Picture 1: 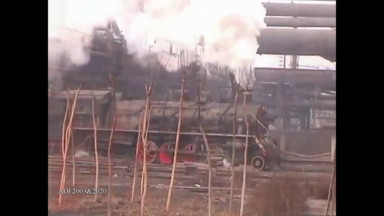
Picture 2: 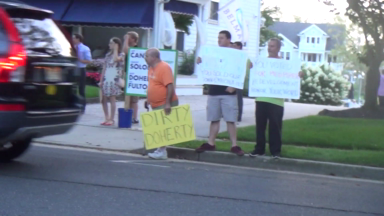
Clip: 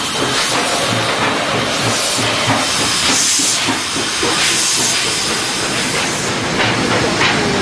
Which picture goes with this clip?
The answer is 1